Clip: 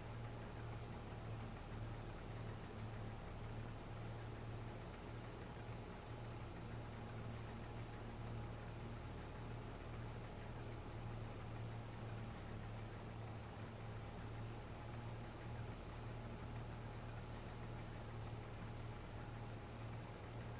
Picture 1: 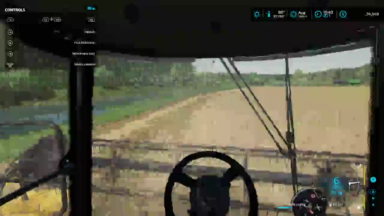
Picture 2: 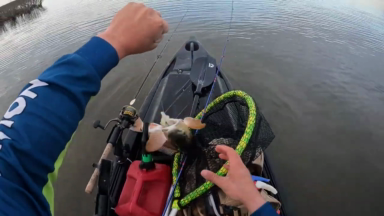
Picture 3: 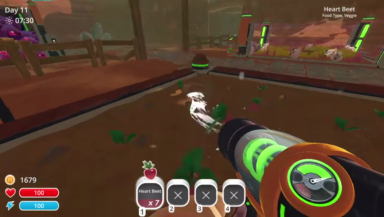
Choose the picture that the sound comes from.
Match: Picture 1